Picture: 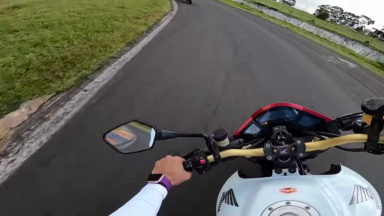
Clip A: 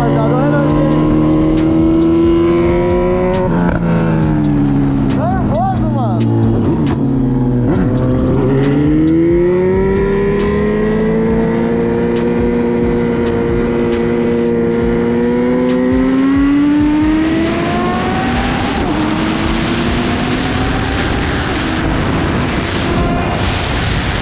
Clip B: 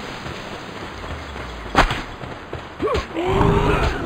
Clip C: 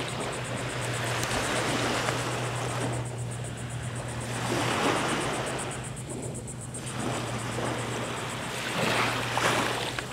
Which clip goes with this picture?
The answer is A